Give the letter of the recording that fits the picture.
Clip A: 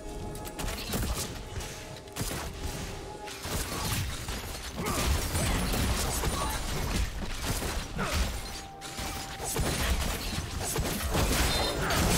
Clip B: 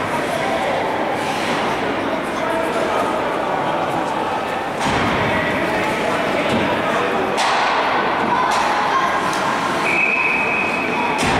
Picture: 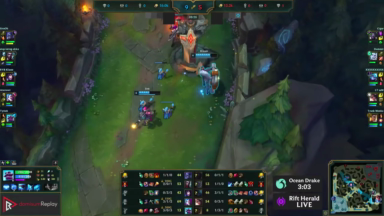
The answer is A